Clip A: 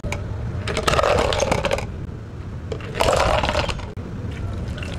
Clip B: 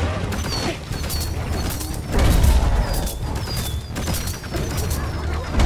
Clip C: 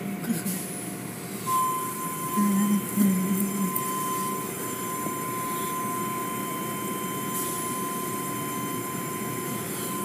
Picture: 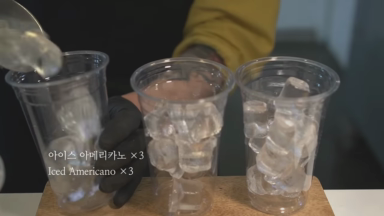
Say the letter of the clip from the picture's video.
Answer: A